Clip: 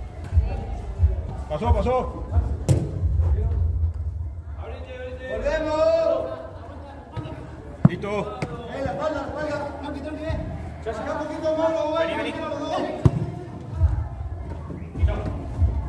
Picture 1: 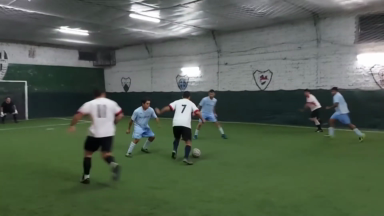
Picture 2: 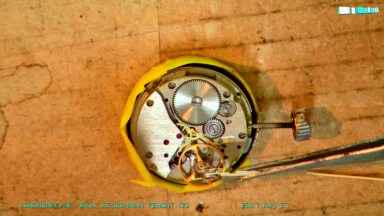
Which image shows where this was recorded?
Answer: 1